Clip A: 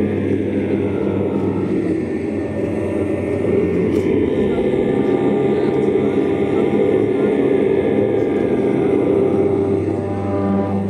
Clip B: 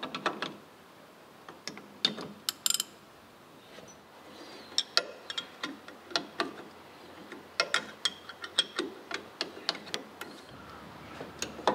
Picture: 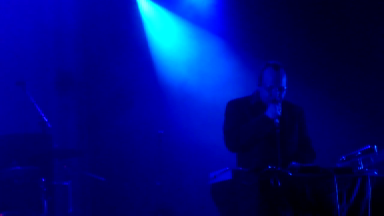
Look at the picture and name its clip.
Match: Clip A